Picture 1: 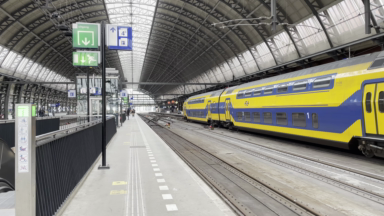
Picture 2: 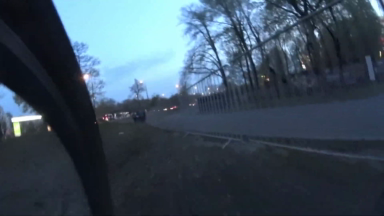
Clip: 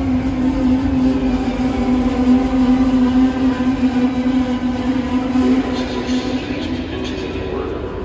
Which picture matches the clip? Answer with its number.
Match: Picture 1